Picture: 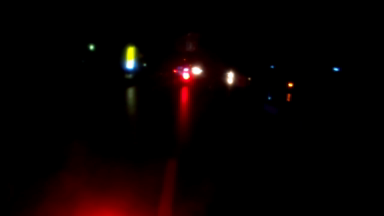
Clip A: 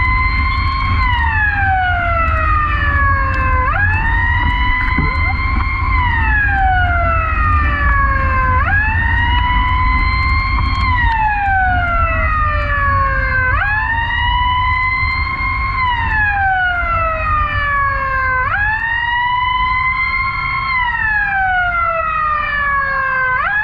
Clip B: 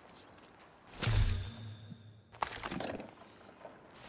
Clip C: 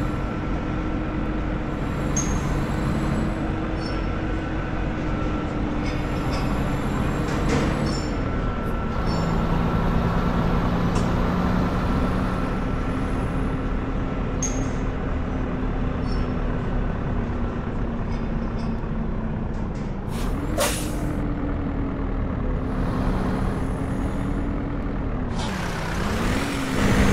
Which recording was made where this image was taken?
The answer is A